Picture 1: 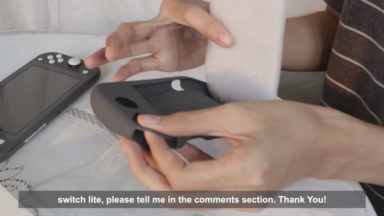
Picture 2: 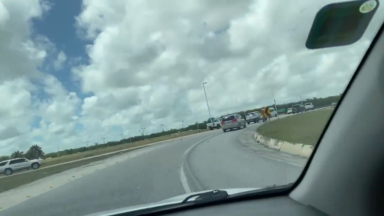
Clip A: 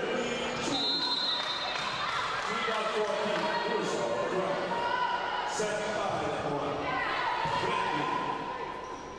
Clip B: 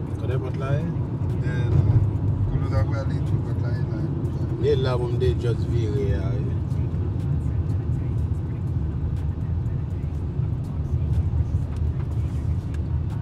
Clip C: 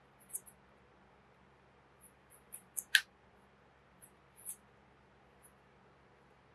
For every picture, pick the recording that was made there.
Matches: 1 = C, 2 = B